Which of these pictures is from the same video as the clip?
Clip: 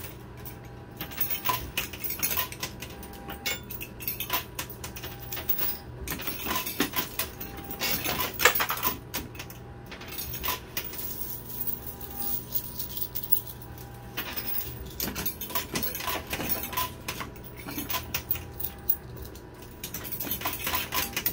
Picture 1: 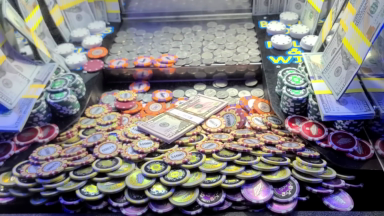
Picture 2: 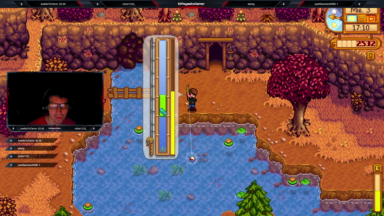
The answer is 1